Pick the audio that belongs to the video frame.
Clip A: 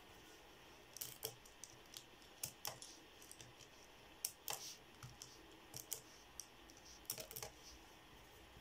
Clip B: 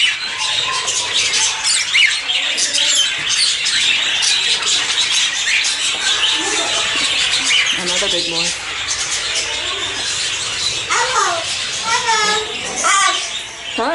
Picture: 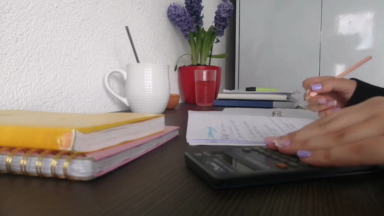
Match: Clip A